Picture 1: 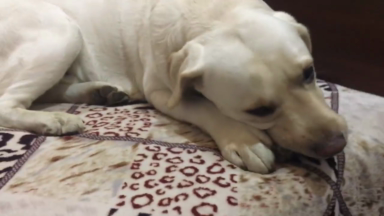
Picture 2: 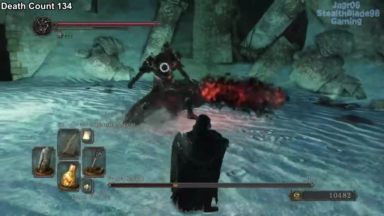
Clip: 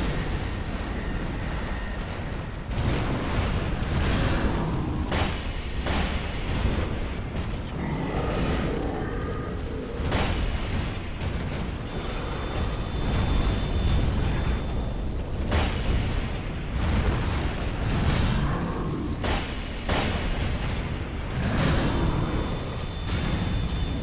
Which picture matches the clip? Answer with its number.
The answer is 2